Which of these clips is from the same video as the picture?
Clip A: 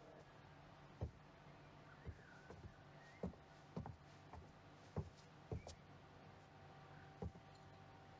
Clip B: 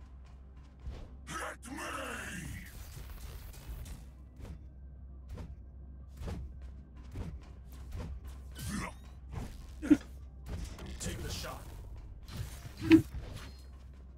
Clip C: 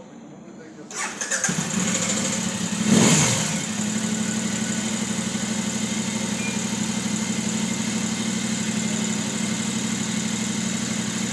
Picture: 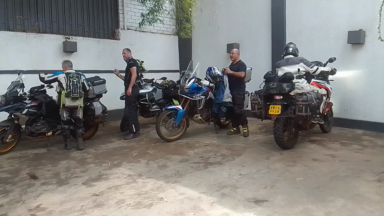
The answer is C